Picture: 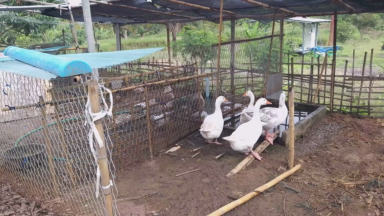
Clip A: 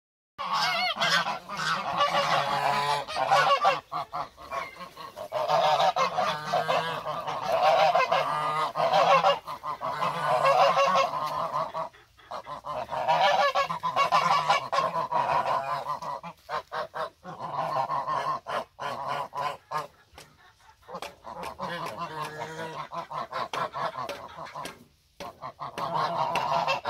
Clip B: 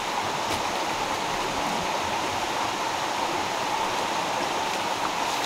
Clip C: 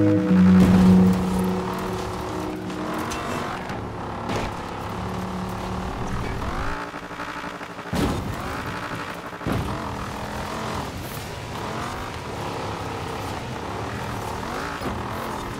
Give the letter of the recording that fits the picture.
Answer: A